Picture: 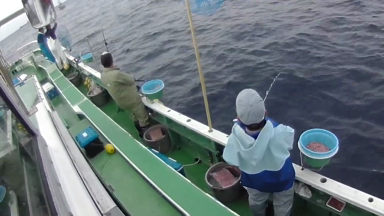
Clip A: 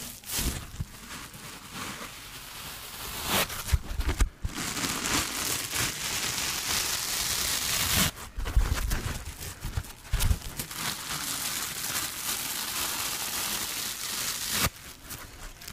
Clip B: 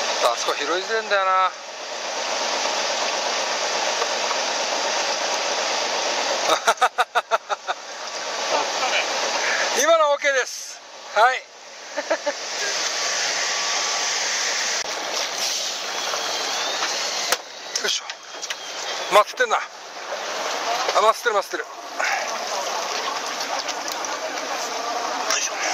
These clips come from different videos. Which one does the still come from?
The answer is B